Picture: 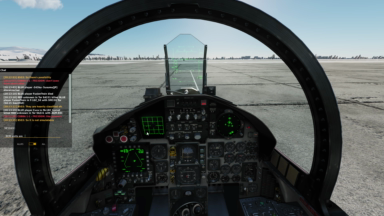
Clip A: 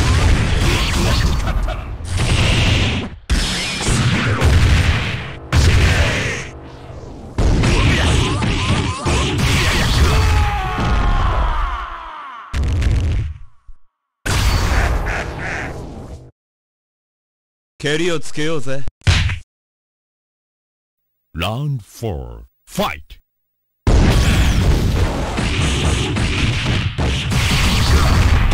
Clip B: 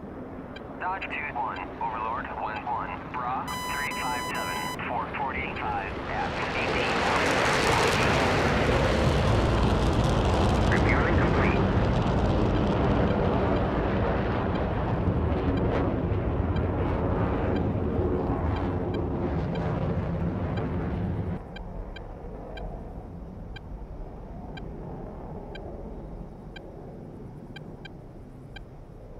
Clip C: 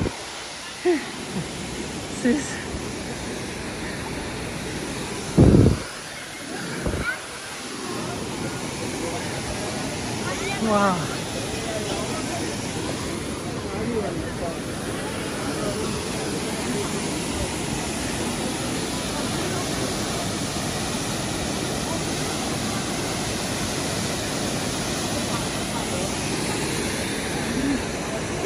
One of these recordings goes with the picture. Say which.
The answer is B